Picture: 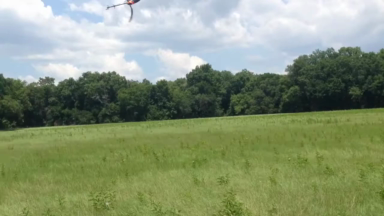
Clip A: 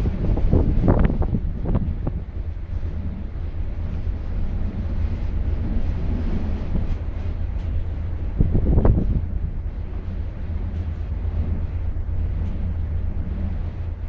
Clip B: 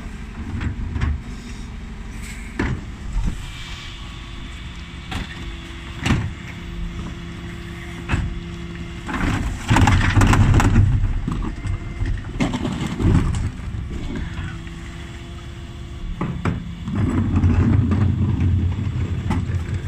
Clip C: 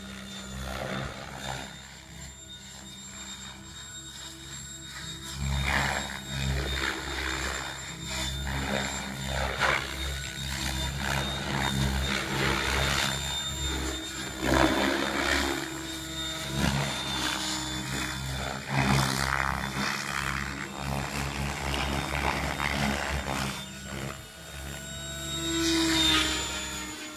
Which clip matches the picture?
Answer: C